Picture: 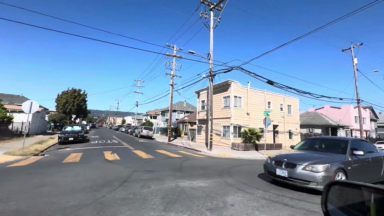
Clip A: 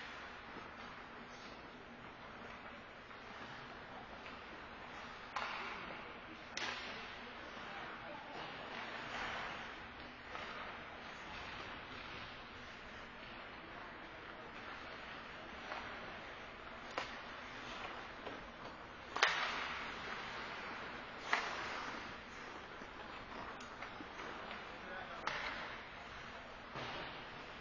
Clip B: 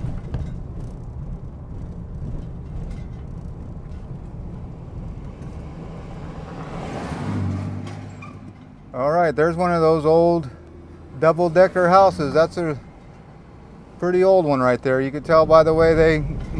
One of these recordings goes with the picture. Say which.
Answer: B